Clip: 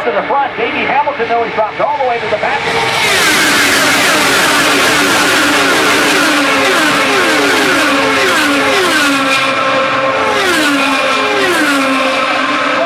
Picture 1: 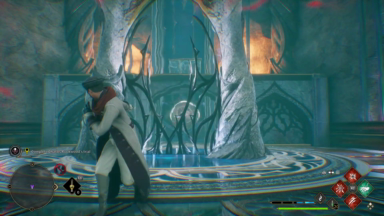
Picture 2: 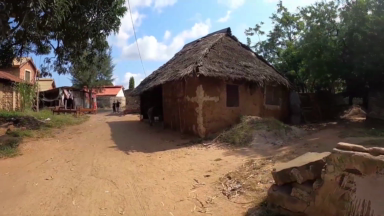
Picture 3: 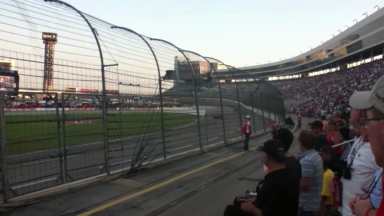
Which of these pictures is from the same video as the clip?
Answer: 3